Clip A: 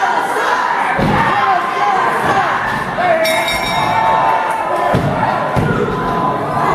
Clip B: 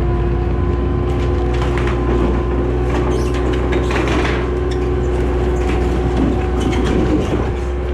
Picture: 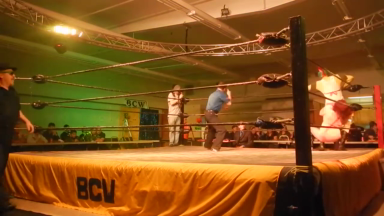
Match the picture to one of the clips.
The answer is A